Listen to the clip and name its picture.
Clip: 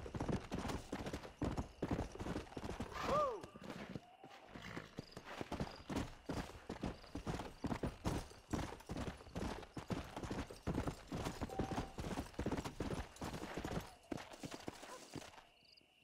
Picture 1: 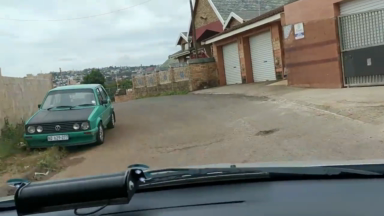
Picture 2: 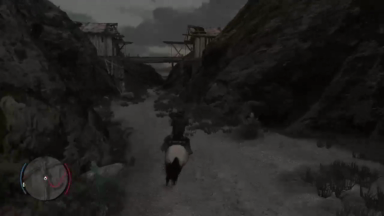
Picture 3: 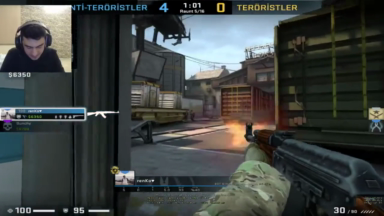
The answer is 2